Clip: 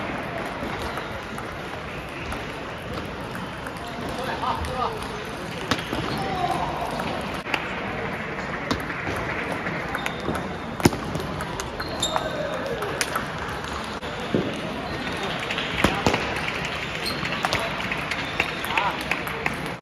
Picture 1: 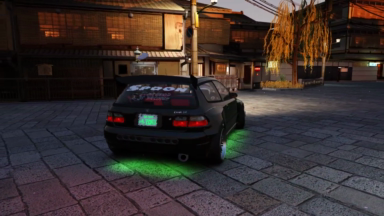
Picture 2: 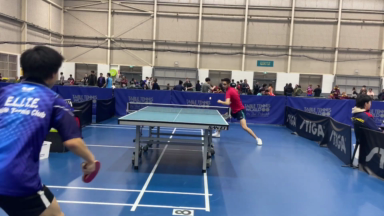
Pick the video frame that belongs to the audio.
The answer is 2